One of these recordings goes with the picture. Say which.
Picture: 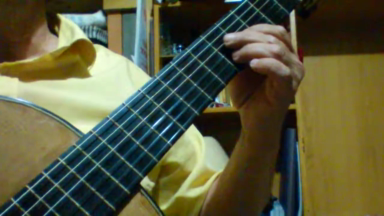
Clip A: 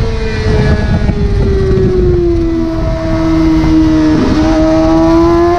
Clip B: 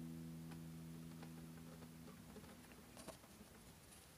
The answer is B